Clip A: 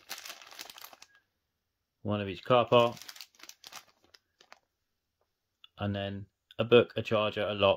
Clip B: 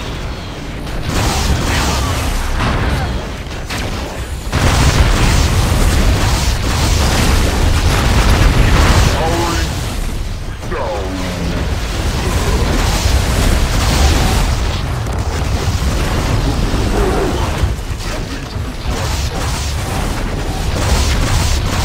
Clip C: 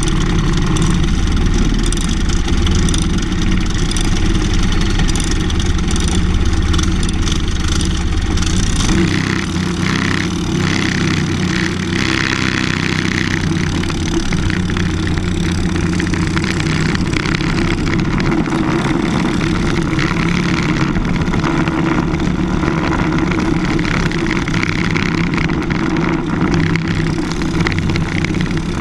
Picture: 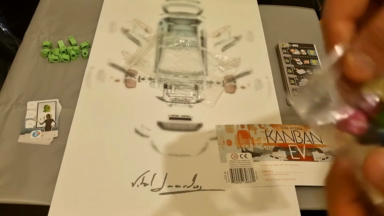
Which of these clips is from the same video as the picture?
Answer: A